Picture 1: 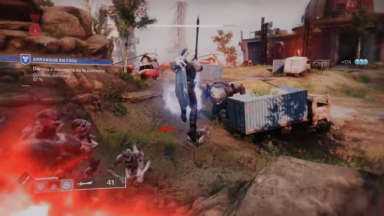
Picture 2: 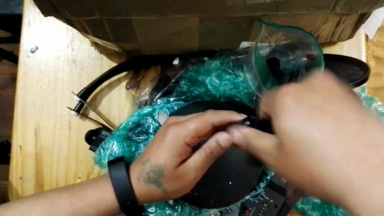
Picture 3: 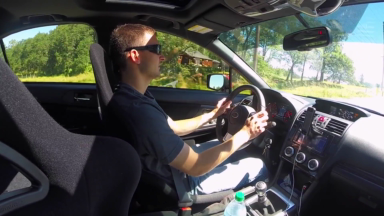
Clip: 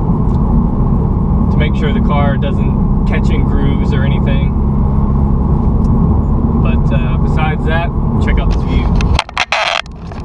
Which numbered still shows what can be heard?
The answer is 3